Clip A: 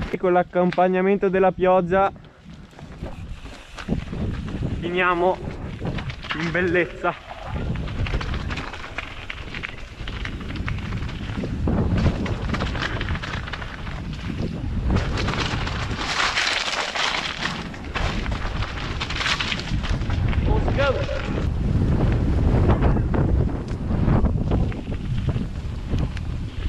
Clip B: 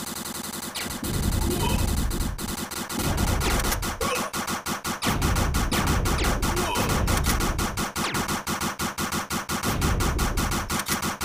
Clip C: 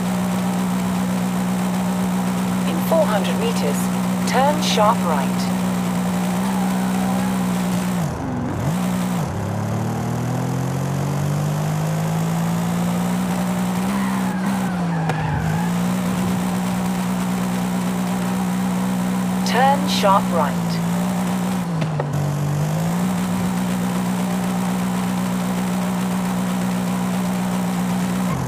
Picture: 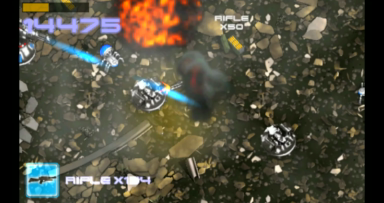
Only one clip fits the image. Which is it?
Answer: B